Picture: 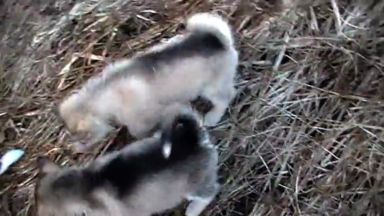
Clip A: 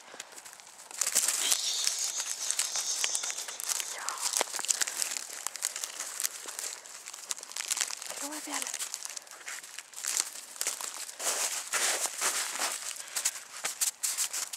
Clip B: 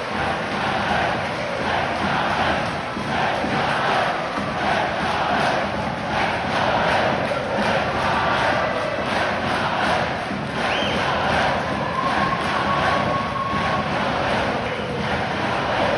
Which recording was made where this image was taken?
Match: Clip A